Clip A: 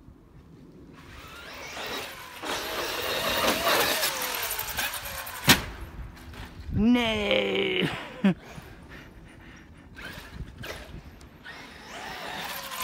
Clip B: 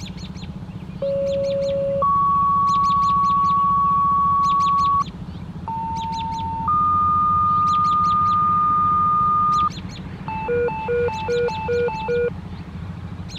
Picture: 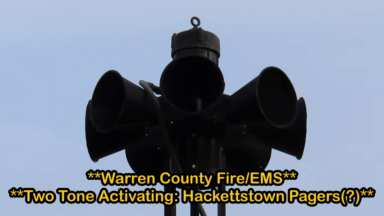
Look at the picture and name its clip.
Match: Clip B